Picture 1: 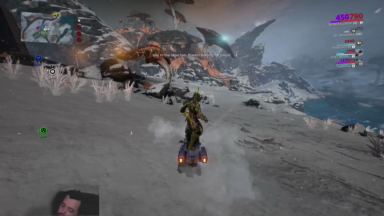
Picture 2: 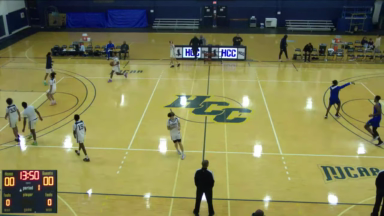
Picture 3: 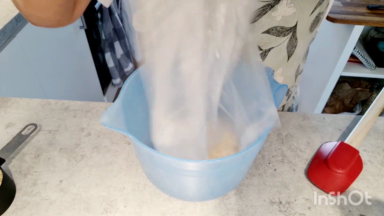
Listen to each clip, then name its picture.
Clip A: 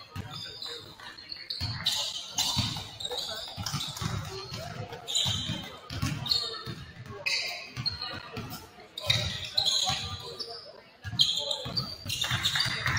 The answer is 2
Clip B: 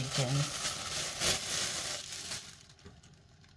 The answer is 3